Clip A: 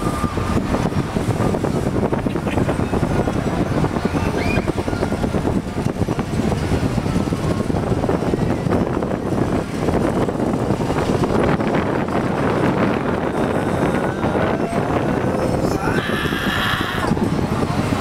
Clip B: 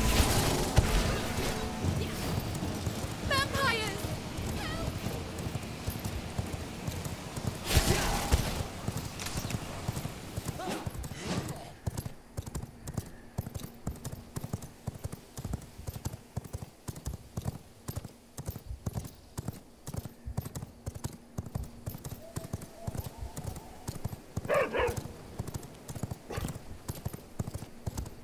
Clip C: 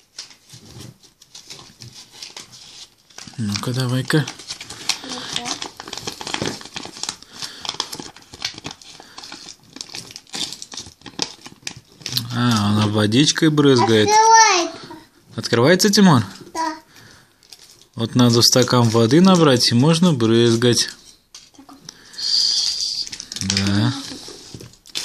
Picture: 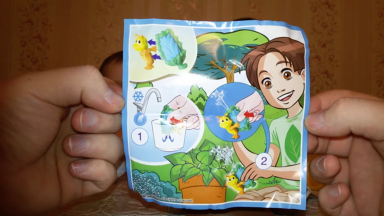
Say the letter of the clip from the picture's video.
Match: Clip C